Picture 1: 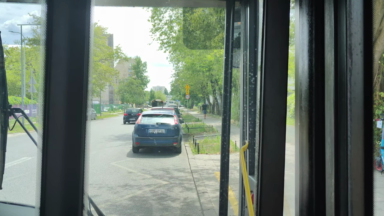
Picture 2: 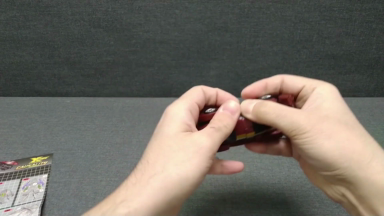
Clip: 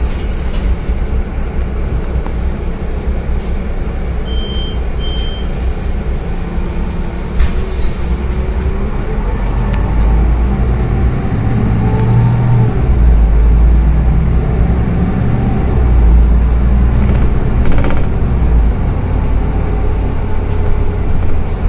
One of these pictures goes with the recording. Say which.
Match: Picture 1